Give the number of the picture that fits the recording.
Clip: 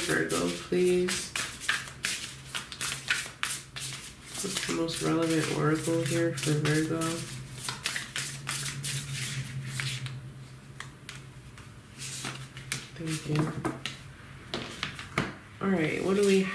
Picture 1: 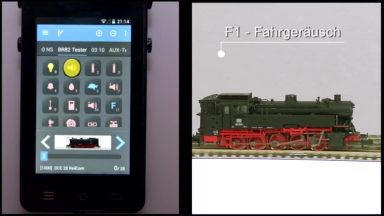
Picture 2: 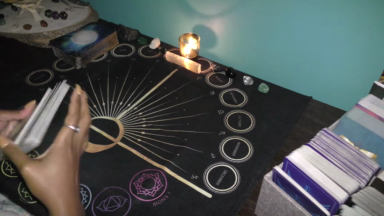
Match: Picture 2